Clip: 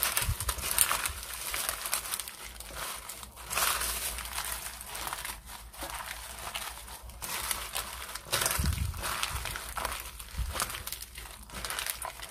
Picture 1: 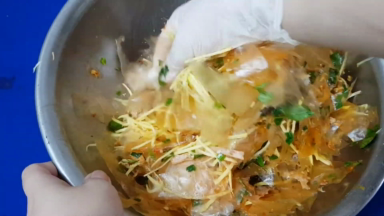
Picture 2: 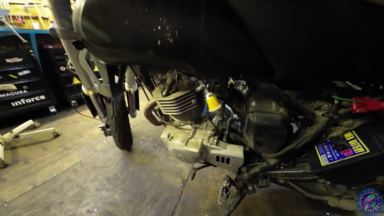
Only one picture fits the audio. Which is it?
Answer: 1